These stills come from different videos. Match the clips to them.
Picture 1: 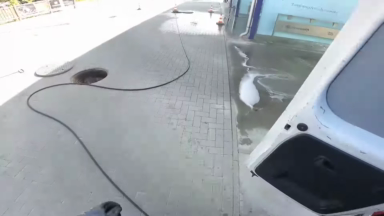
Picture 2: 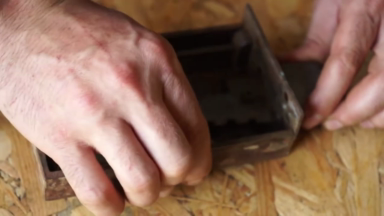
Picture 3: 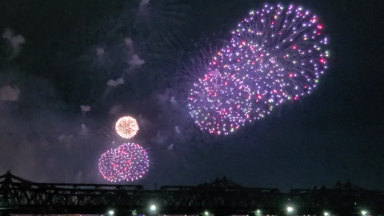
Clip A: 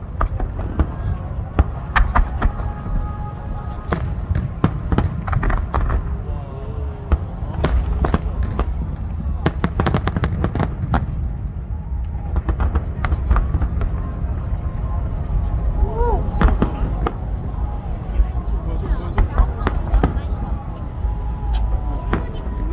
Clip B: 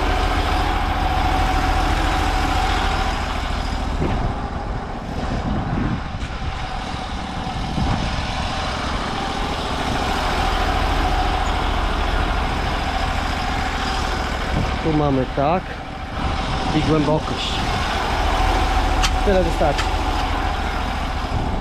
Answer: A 3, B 1